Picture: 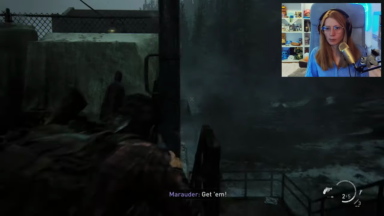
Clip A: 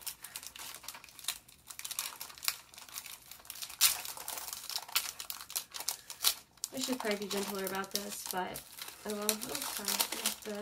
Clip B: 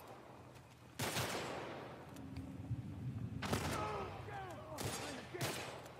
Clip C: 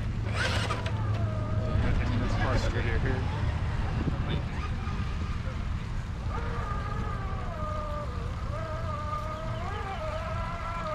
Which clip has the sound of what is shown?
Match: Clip B